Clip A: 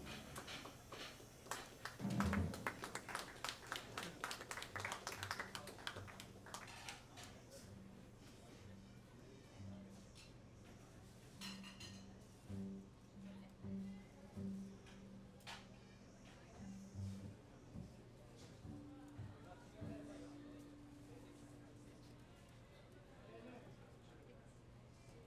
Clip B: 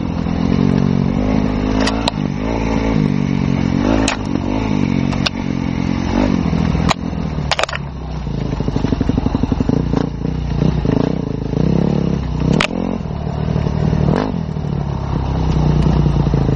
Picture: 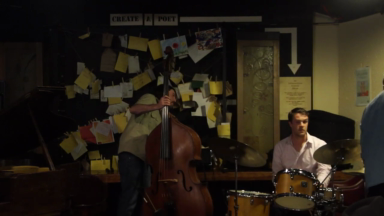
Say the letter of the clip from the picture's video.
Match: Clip A